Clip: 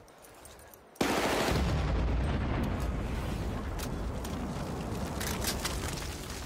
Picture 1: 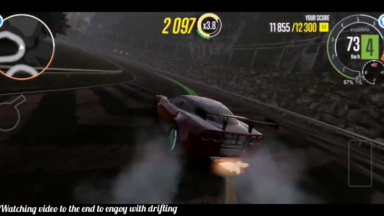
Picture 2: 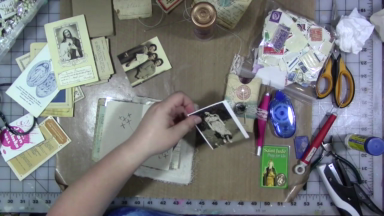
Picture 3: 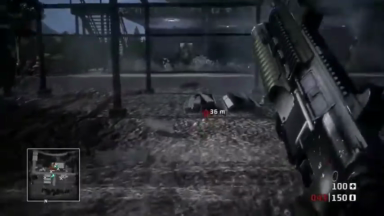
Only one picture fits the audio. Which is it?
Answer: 3